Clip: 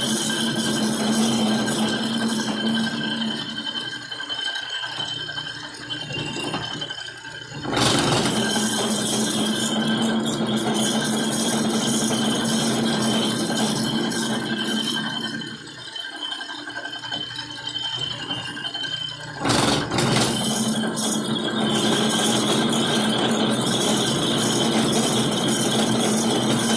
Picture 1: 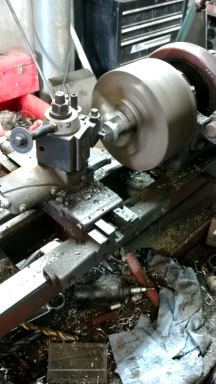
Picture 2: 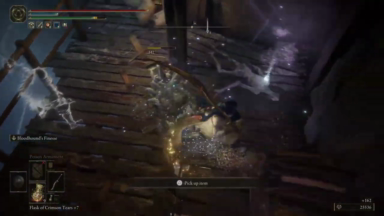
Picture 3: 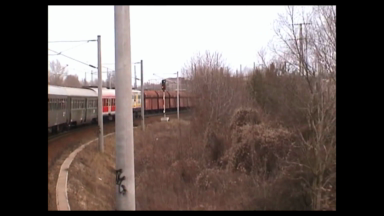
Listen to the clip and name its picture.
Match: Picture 1